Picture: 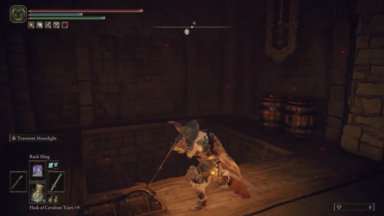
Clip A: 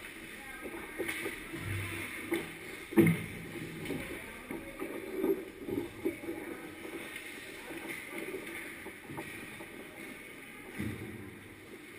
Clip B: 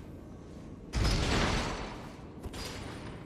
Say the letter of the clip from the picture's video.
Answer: B